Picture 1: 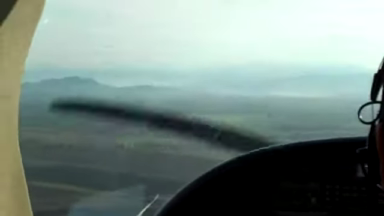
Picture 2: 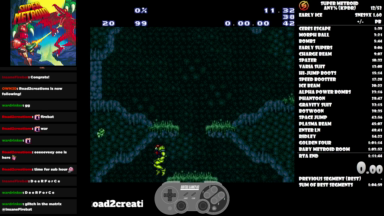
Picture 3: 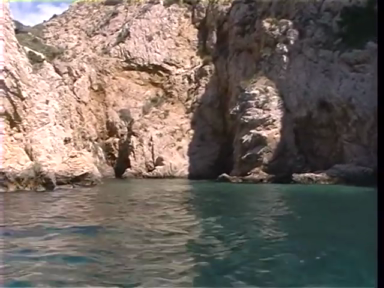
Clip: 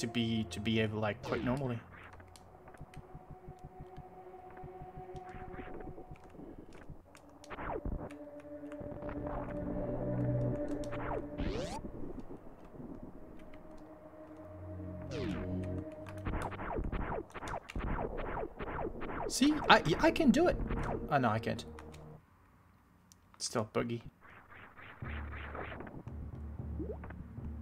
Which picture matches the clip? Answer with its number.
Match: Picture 2